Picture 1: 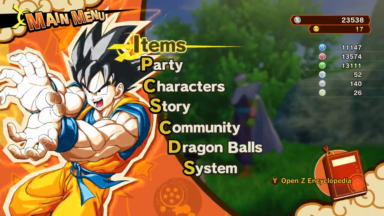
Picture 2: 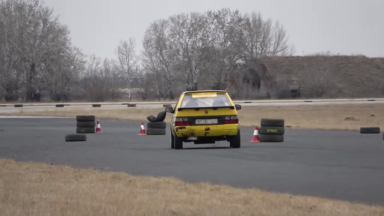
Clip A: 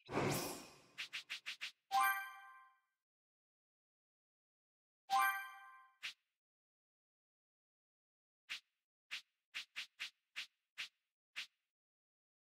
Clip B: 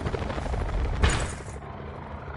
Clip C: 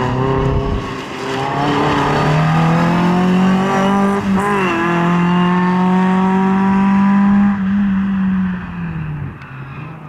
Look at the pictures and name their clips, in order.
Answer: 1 A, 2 C